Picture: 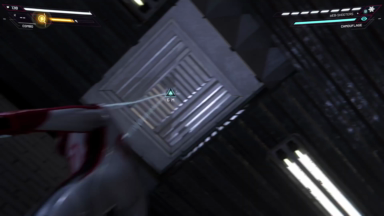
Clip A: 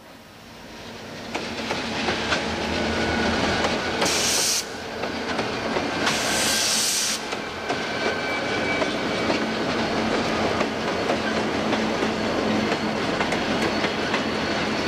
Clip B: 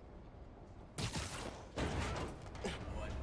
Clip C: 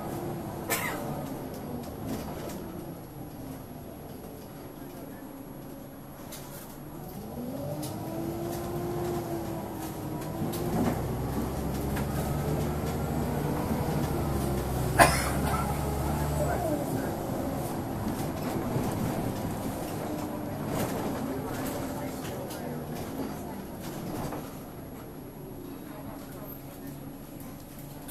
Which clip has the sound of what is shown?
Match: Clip B